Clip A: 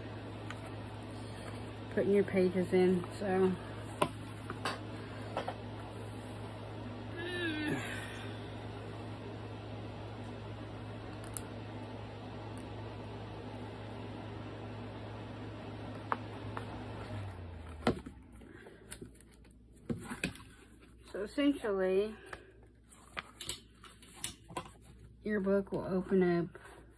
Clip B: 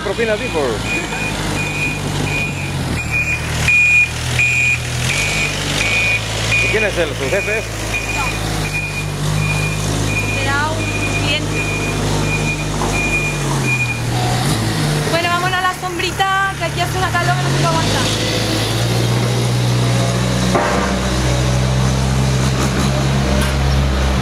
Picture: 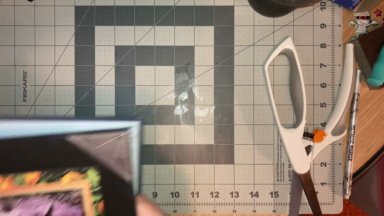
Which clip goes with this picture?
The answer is A